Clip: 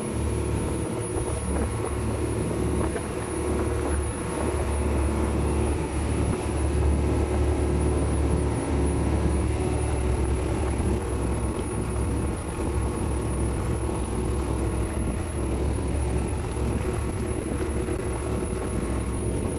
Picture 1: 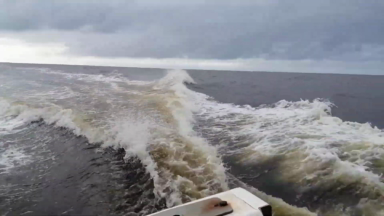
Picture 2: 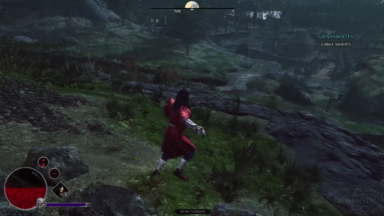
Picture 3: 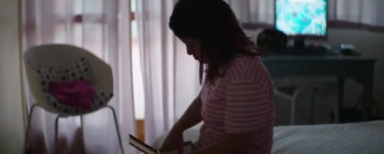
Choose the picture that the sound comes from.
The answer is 1